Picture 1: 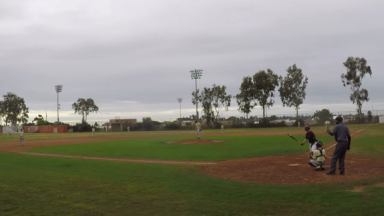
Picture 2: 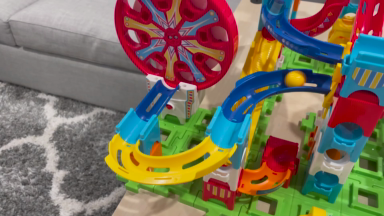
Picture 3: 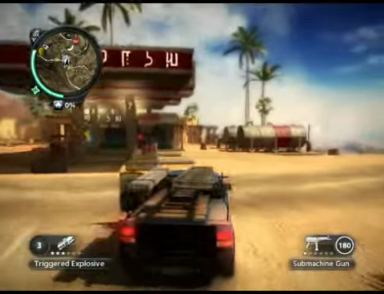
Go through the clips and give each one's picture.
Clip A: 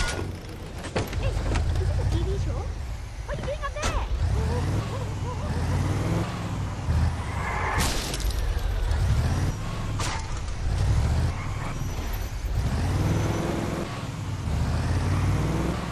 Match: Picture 3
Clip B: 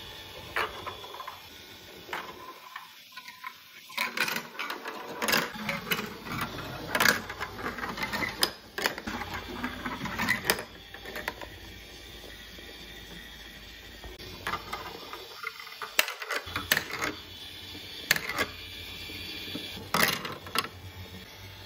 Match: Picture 2